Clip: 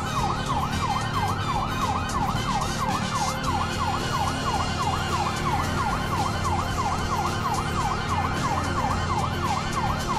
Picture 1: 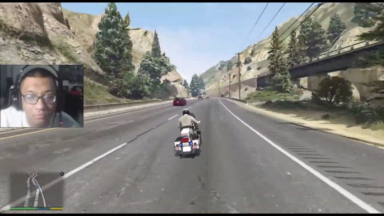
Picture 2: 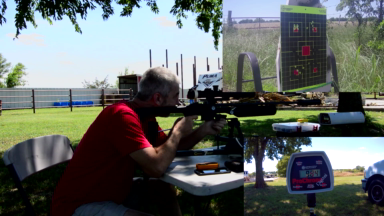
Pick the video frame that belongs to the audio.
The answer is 1